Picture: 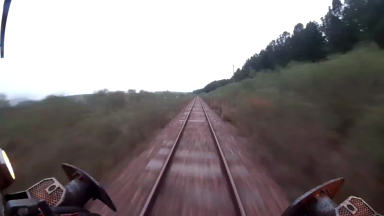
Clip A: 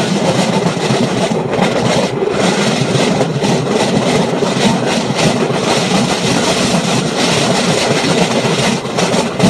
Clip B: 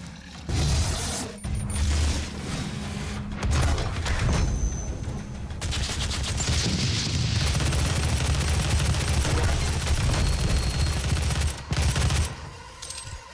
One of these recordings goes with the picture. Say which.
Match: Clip A